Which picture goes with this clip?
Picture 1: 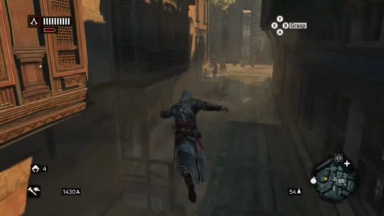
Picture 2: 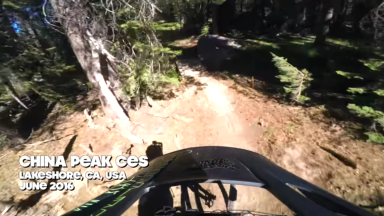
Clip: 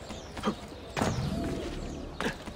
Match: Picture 1